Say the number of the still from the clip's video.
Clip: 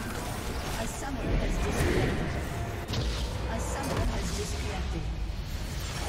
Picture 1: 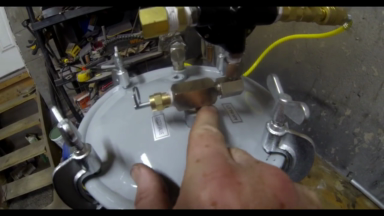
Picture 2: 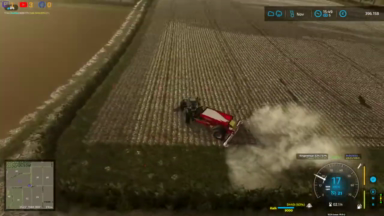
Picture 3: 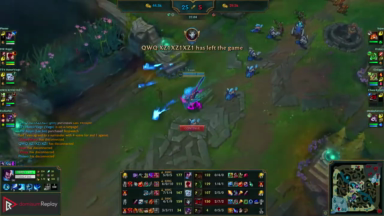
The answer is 3